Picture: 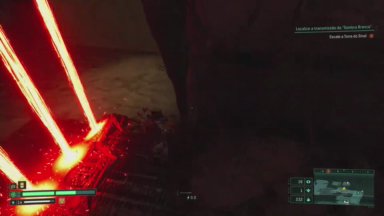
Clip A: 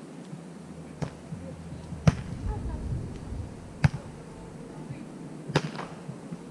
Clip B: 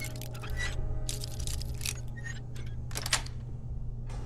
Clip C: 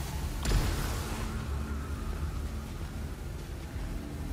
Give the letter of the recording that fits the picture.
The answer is C